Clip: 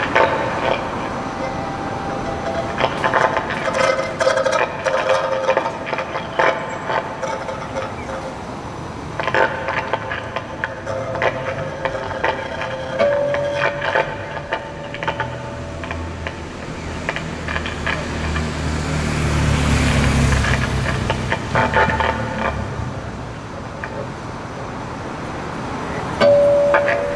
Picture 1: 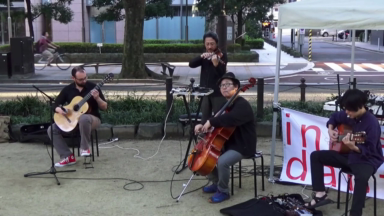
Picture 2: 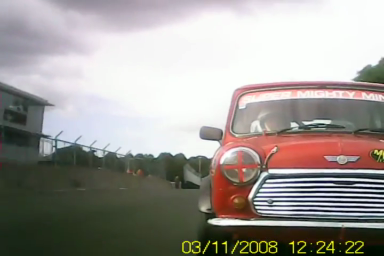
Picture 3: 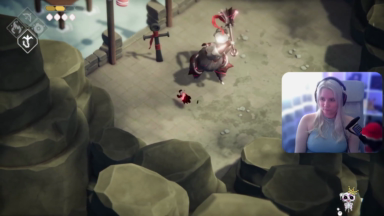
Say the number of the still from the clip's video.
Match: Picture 1